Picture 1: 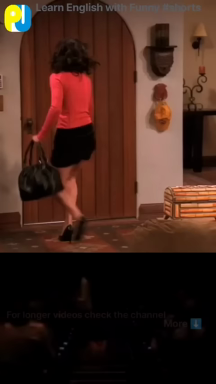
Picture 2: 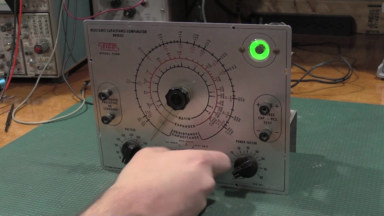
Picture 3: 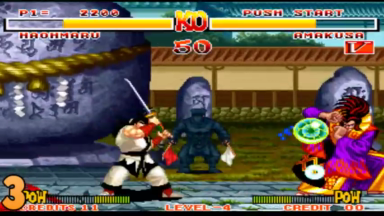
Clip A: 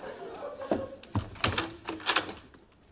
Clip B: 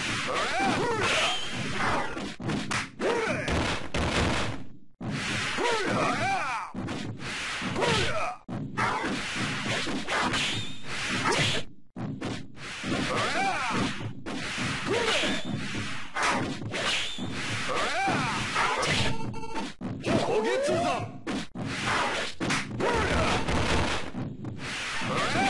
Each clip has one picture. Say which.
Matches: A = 1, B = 3